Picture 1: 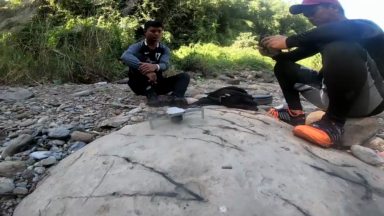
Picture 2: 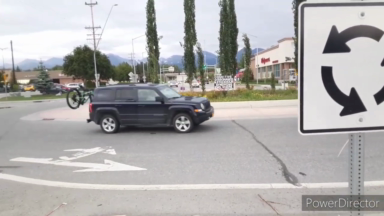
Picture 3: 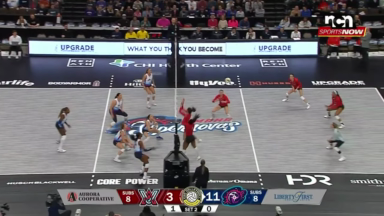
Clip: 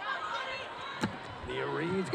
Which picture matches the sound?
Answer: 3